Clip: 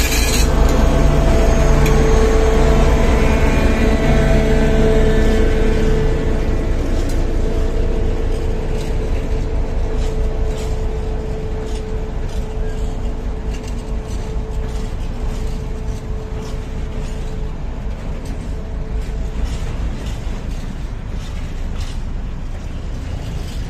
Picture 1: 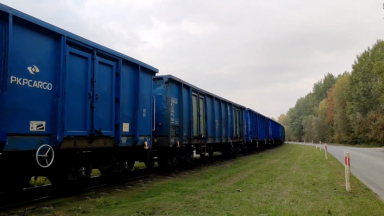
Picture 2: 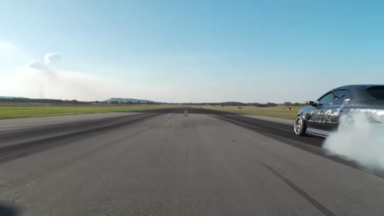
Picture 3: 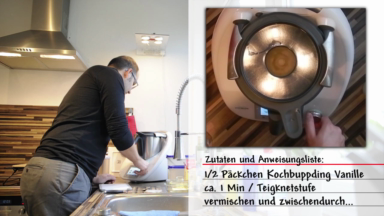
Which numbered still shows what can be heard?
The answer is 1